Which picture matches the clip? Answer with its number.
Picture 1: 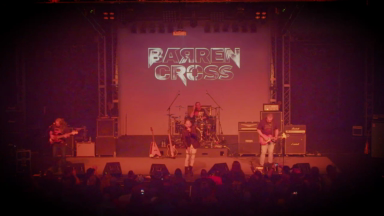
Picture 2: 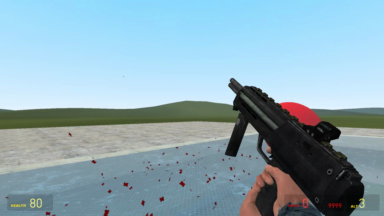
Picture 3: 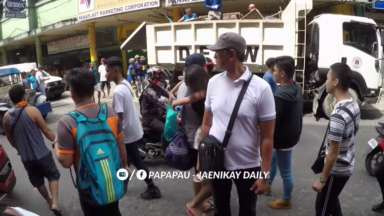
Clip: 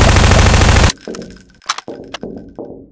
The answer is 2